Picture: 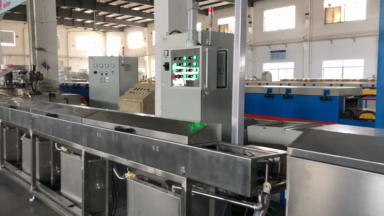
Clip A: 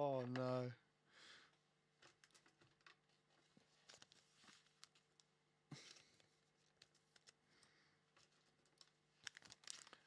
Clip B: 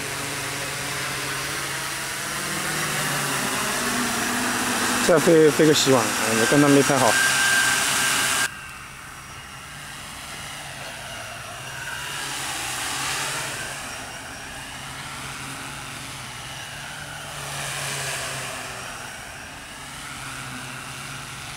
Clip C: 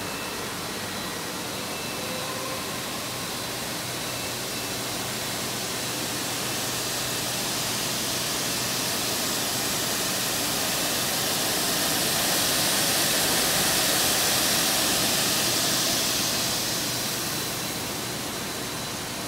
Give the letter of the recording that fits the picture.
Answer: C